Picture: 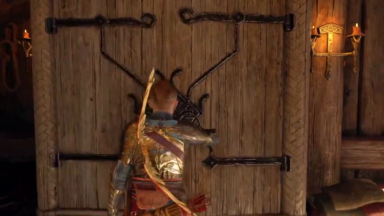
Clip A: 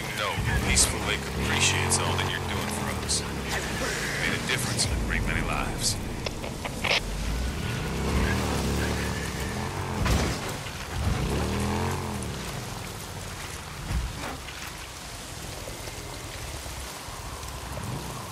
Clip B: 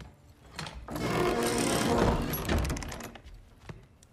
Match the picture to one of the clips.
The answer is B